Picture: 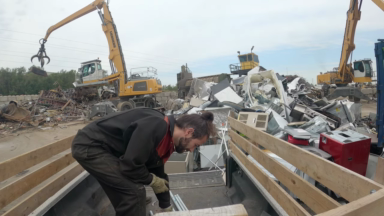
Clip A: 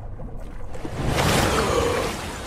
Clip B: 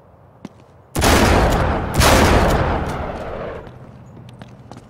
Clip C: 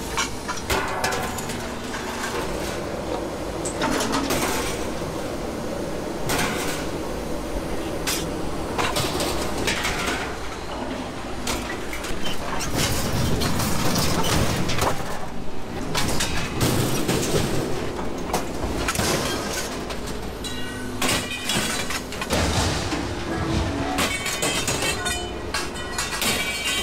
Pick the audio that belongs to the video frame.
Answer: C